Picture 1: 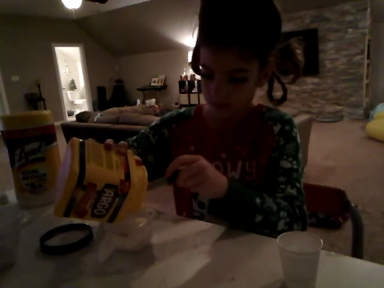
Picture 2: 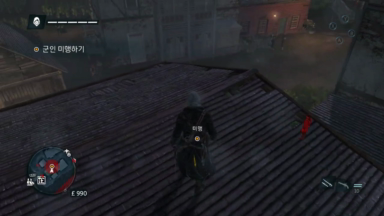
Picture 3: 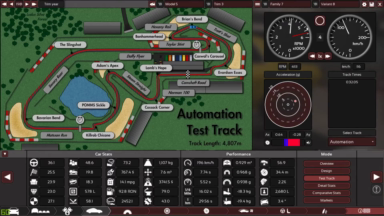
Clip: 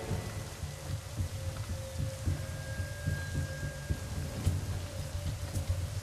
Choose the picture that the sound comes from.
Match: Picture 2